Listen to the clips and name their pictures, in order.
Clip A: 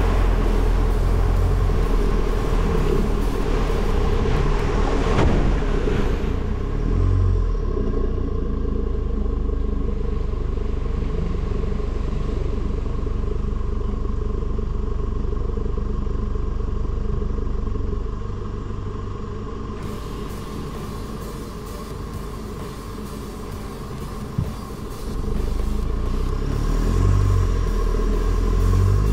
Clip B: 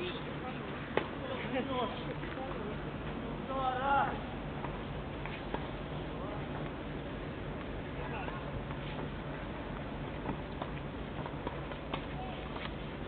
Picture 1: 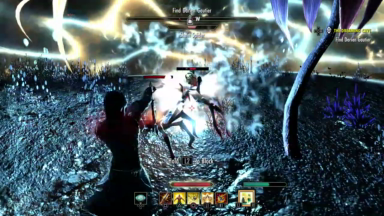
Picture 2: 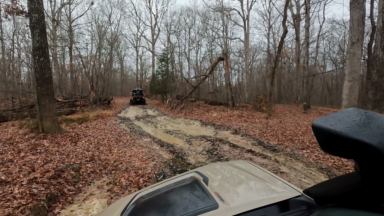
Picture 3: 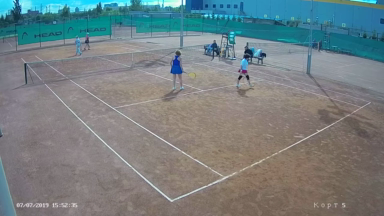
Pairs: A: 2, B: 3